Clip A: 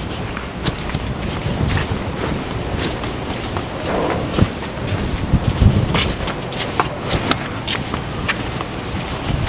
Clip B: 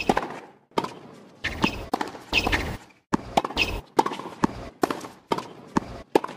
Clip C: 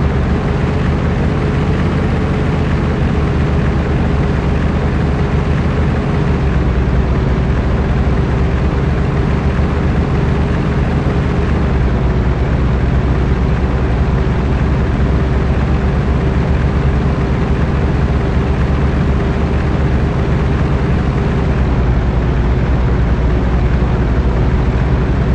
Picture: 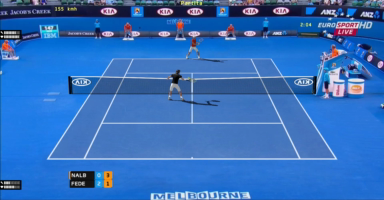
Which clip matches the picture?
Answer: B